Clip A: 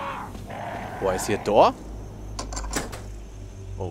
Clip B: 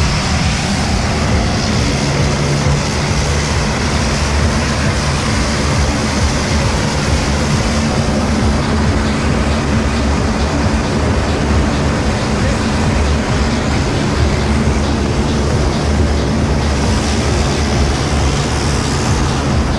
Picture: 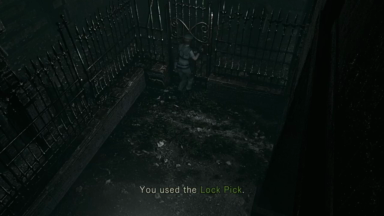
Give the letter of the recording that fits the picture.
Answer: A